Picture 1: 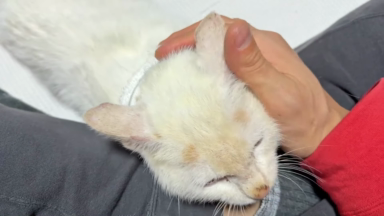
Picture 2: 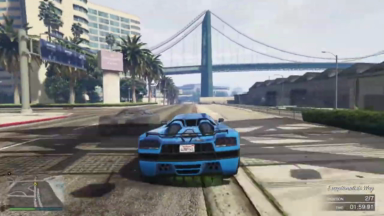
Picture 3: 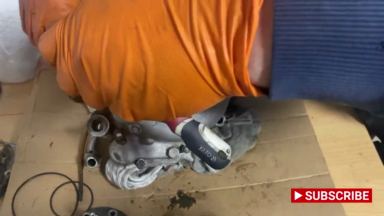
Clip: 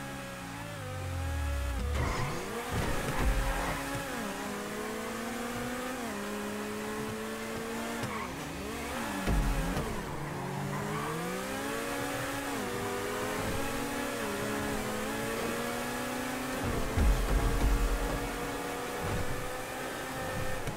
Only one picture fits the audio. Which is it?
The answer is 2